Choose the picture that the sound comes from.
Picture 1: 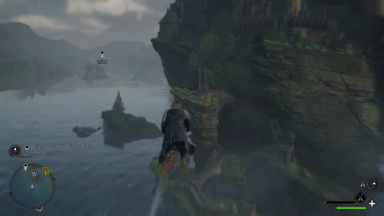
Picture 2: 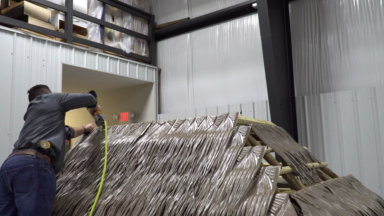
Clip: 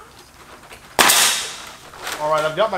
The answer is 2